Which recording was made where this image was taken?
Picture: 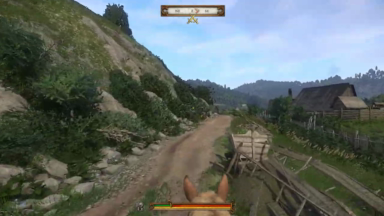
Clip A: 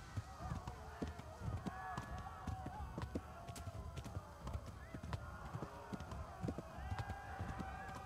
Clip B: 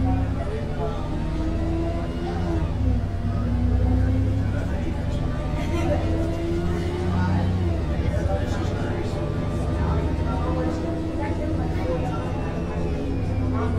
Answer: A